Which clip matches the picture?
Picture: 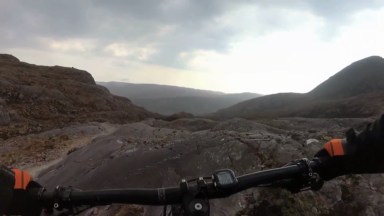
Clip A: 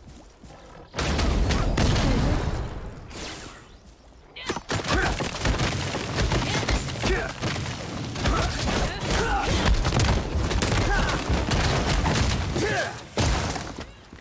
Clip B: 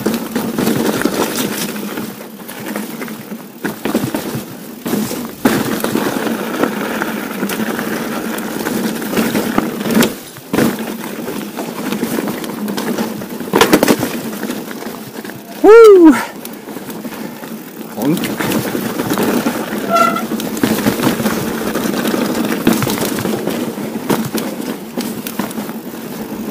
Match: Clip B